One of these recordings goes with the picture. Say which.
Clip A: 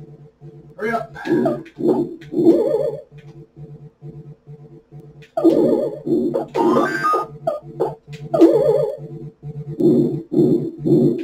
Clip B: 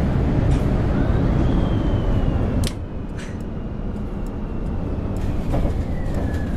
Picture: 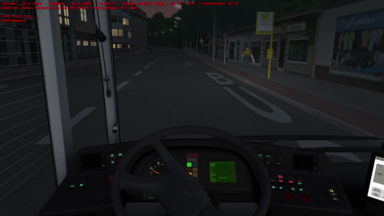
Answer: B